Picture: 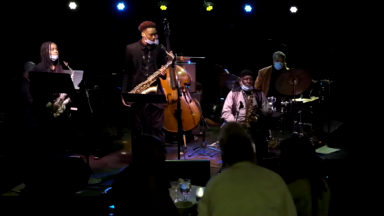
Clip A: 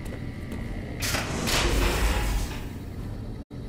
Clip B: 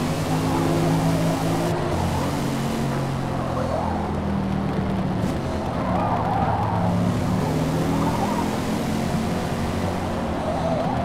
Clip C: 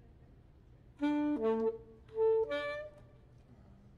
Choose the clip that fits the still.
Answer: C